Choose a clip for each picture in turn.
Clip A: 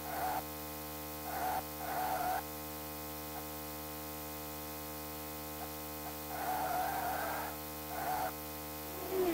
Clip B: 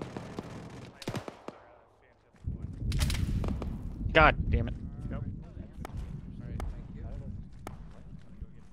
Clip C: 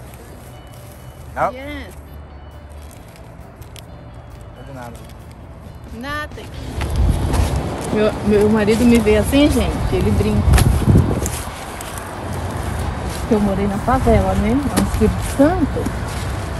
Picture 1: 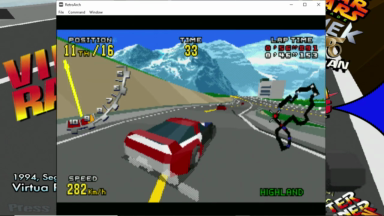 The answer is A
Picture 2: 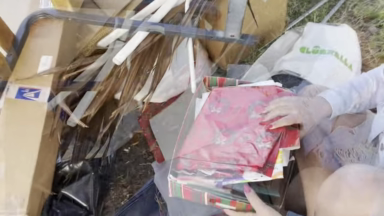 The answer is C